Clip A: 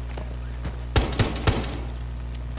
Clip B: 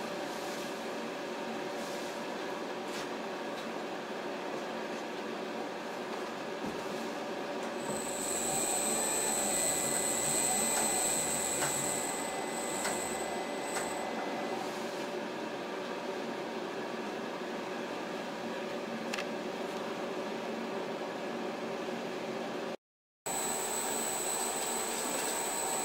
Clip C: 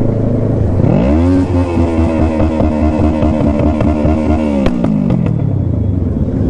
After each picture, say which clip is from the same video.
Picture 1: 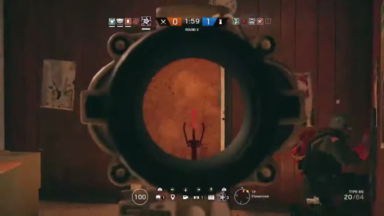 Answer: A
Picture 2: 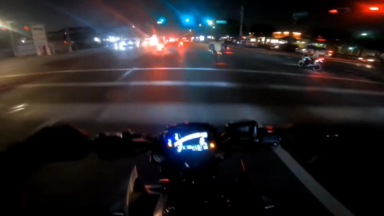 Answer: C